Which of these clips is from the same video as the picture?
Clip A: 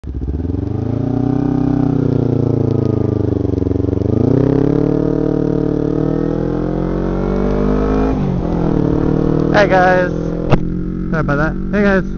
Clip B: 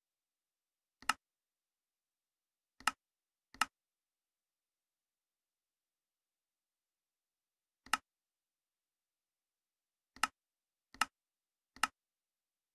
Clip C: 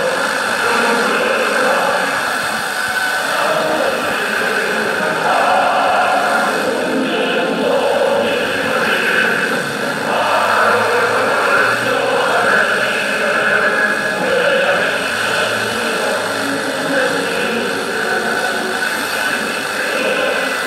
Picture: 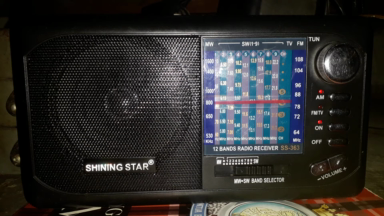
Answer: C